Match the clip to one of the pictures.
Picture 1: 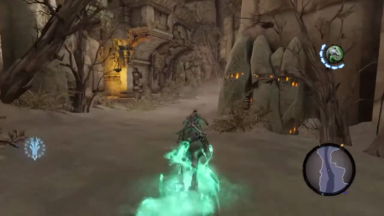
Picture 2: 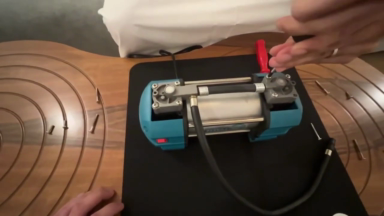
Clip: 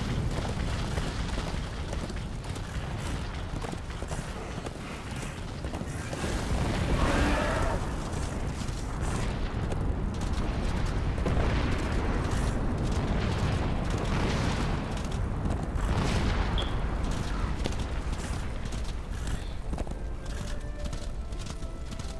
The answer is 1